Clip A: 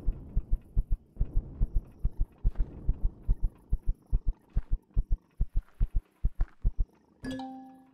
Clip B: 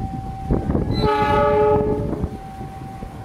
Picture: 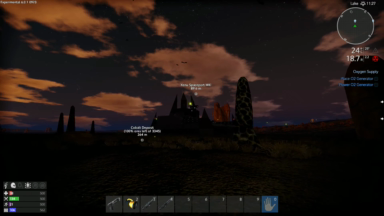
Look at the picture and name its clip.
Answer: A